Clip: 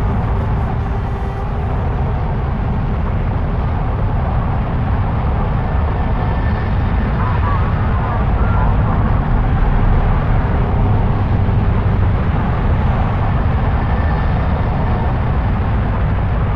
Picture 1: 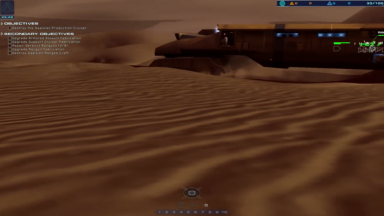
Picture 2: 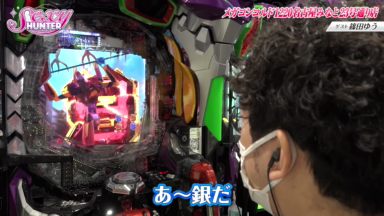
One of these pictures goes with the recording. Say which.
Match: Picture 1